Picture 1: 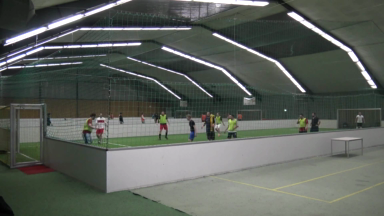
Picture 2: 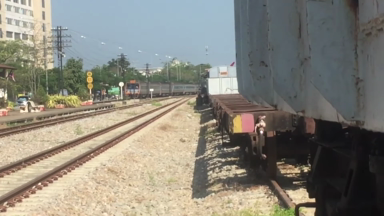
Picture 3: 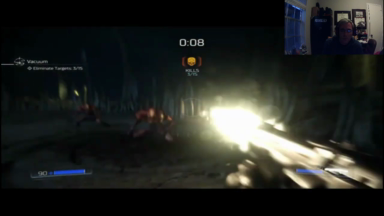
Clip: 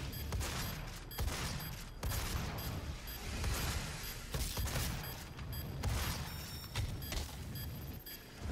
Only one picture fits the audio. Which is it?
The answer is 3